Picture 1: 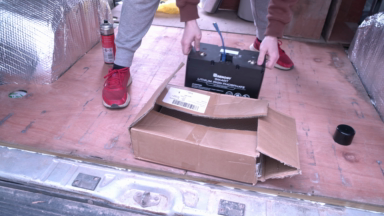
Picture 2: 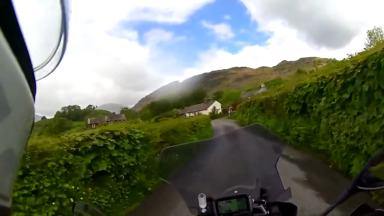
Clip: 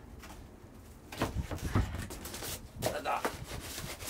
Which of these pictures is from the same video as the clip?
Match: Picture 1